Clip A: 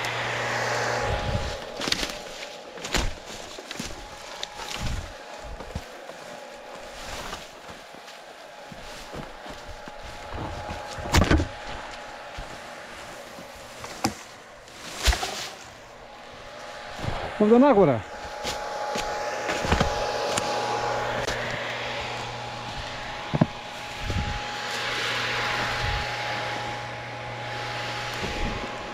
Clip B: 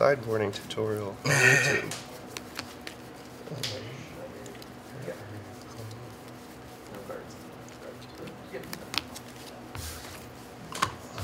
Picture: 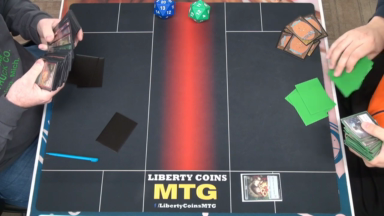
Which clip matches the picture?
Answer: B